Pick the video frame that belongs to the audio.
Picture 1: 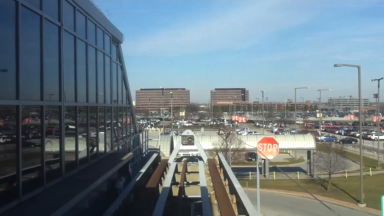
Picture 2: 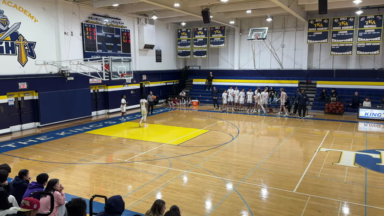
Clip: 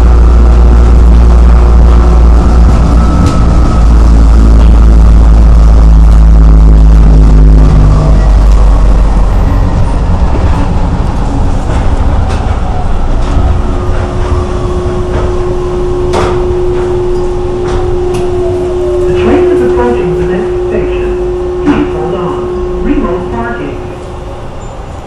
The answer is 1